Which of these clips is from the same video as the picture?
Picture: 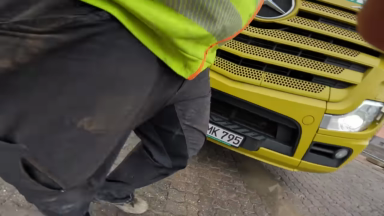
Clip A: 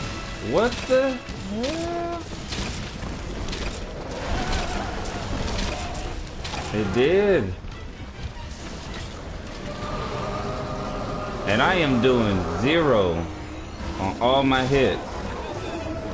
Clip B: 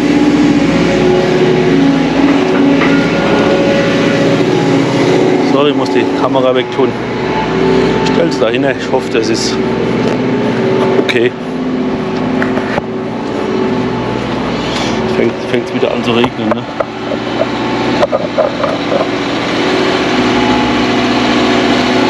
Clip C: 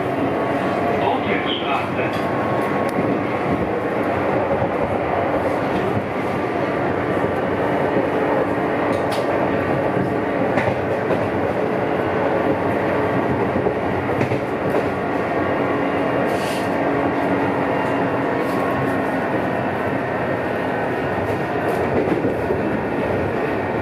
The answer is B